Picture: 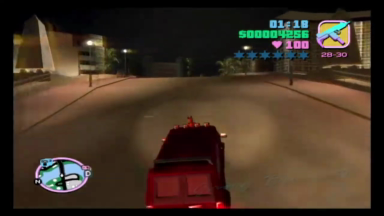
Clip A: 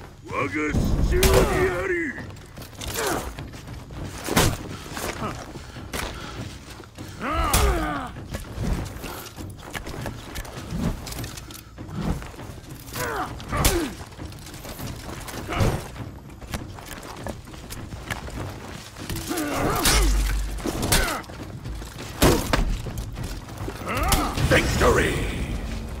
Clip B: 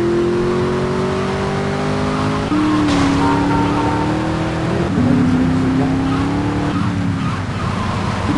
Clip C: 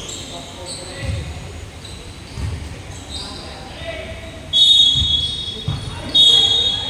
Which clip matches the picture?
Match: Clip B